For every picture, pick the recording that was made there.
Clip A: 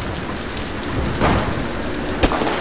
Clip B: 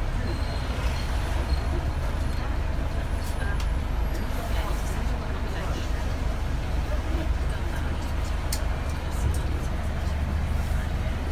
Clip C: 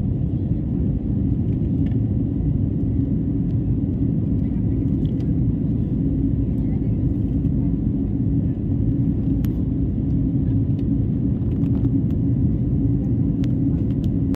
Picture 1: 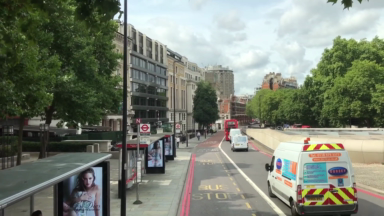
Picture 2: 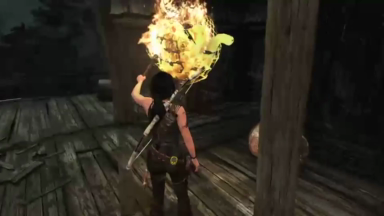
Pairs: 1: B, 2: A